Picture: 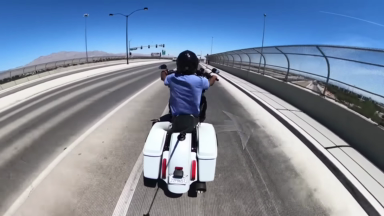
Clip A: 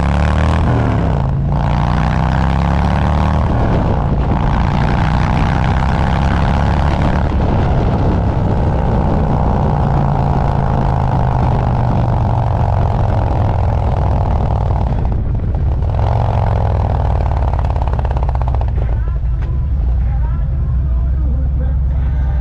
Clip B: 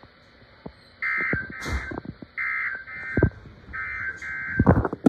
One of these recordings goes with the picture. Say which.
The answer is A